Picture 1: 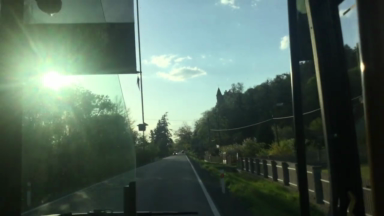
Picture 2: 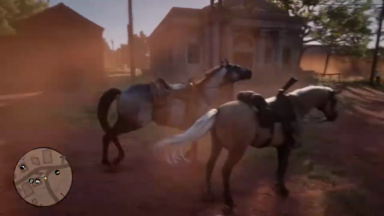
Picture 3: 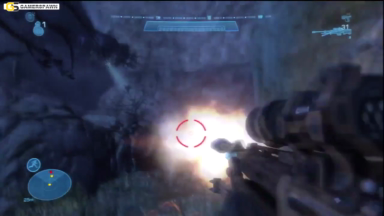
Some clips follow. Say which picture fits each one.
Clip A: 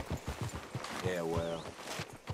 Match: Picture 2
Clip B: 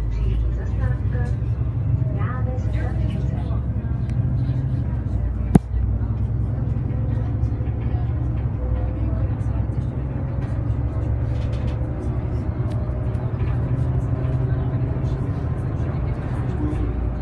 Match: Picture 1